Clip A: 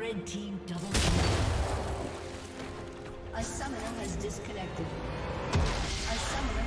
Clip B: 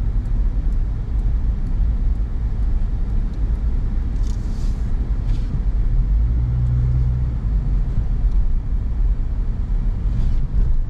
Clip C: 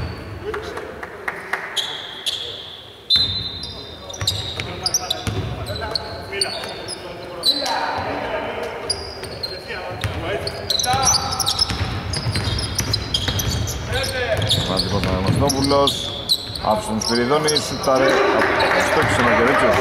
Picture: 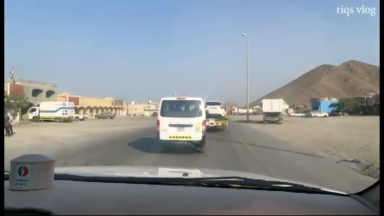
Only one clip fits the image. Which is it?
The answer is B